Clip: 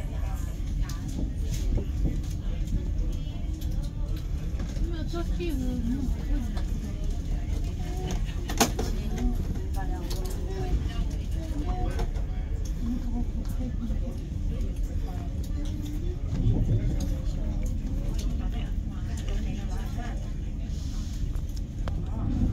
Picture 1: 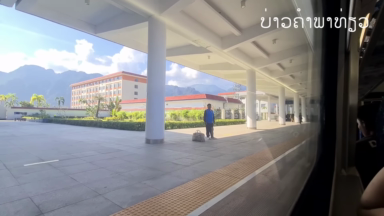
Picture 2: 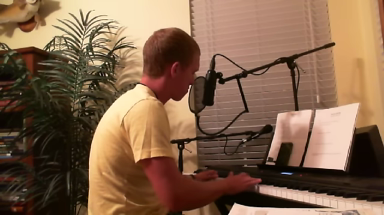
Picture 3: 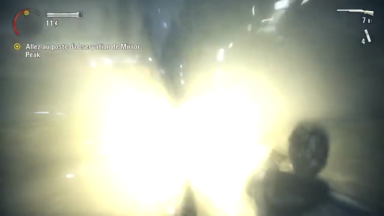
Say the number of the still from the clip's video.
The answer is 1